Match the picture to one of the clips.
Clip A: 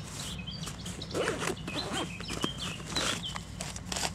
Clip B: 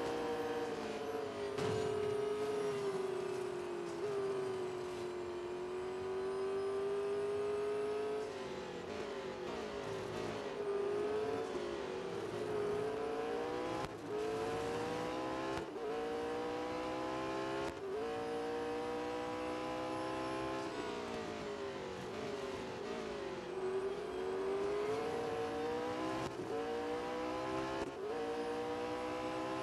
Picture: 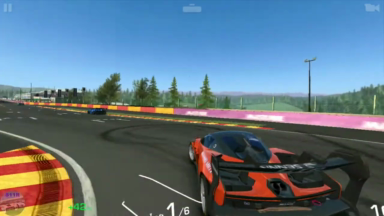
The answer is B